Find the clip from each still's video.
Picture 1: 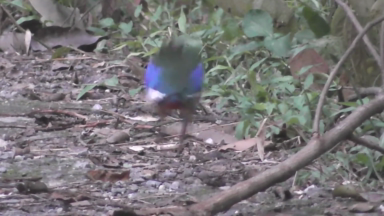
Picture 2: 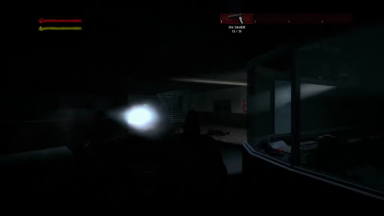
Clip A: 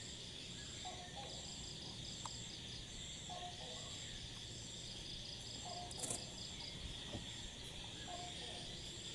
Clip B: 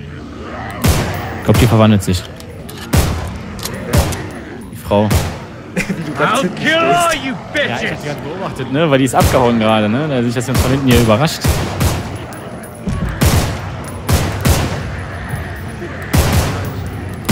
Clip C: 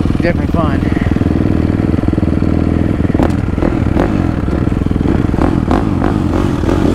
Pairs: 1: A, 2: B